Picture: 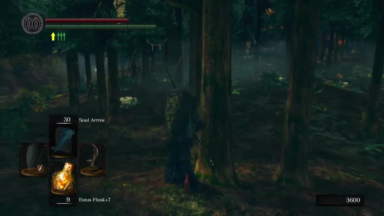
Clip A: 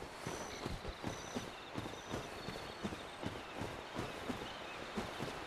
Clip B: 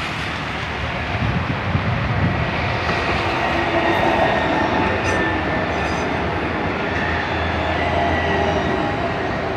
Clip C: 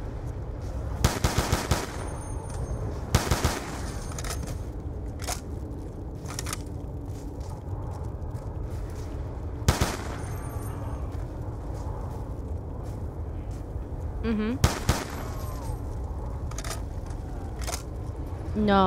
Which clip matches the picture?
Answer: A